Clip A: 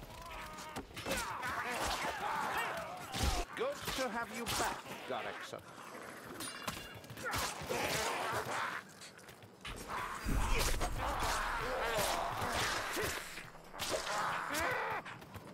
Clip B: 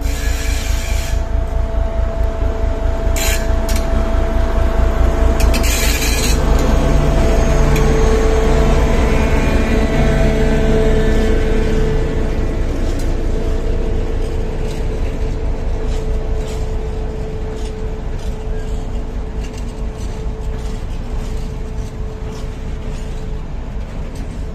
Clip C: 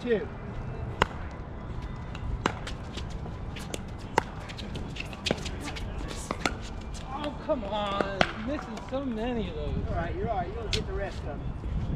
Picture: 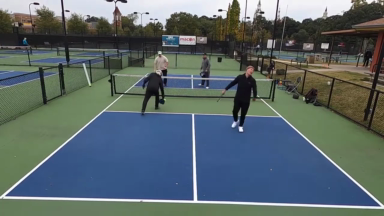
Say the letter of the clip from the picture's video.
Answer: C